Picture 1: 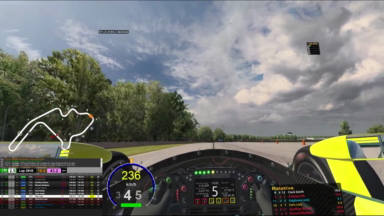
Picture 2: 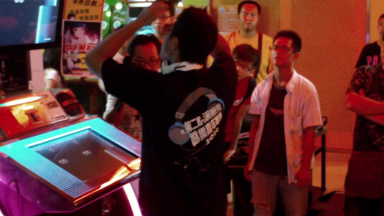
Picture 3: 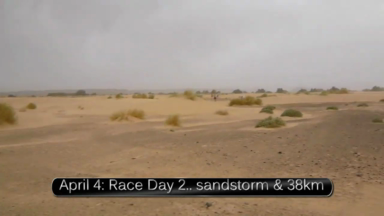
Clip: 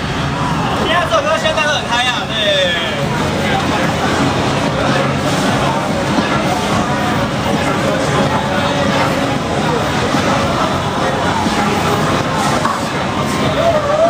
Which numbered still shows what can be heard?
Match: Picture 2